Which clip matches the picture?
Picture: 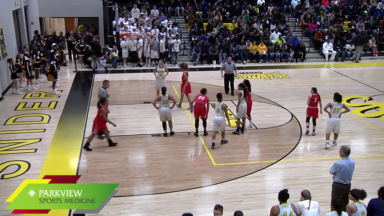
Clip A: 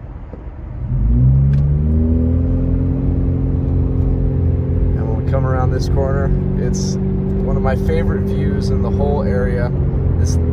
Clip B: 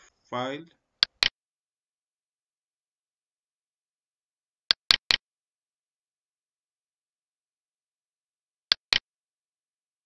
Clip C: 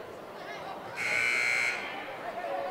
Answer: C